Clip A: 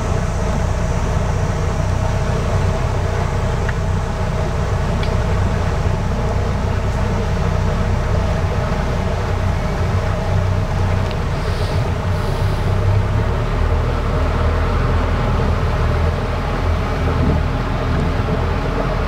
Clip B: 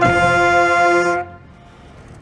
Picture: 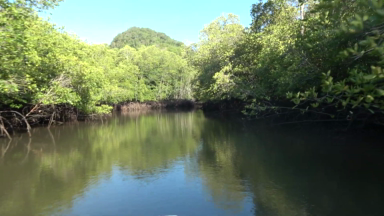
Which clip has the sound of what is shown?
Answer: A